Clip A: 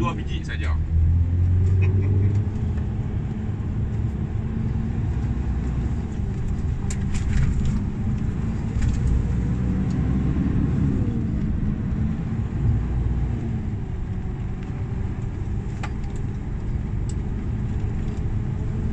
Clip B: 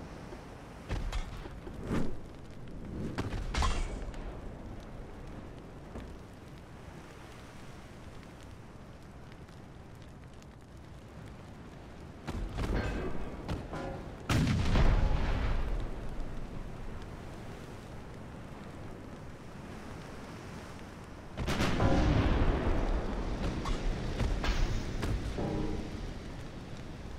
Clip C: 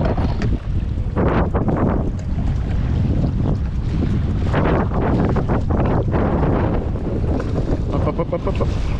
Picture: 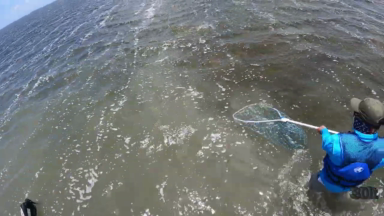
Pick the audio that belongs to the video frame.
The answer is C